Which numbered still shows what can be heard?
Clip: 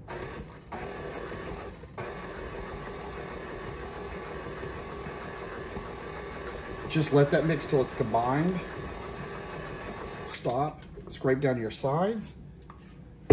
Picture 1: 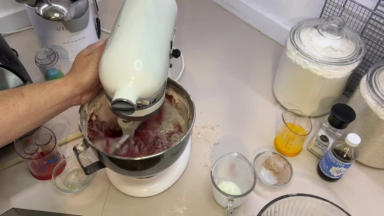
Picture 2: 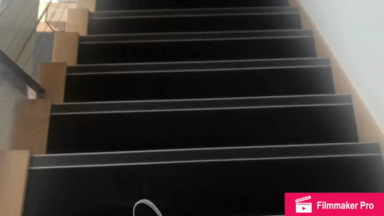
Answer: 1